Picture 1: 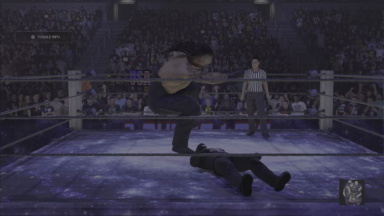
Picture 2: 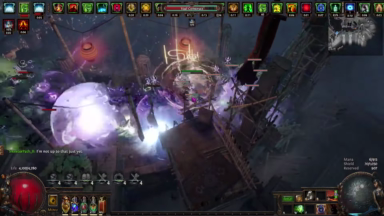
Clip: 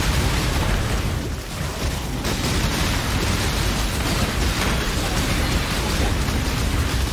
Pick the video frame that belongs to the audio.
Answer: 2